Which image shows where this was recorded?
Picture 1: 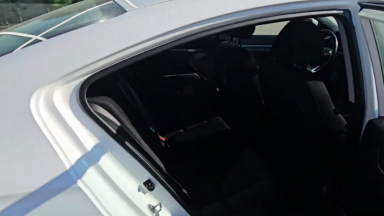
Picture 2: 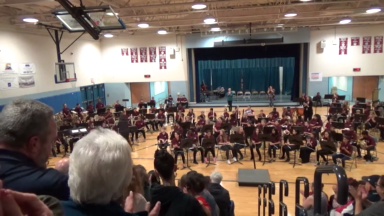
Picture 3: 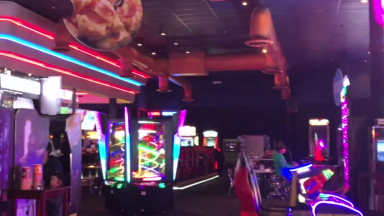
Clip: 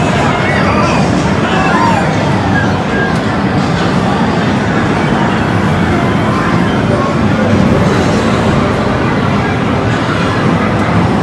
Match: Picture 3